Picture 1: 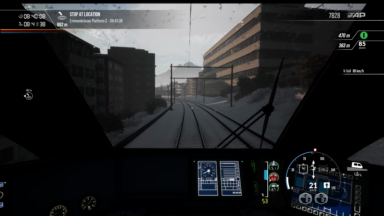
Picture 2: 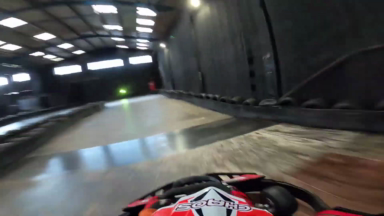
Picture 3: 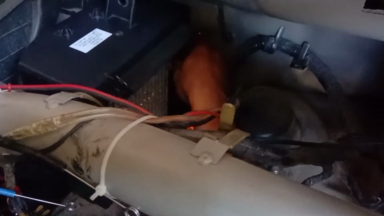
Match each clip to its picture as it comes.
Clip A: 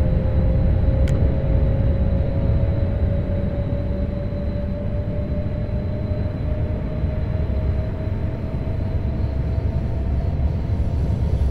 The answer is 1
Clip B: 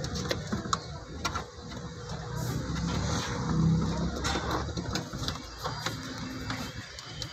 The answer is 3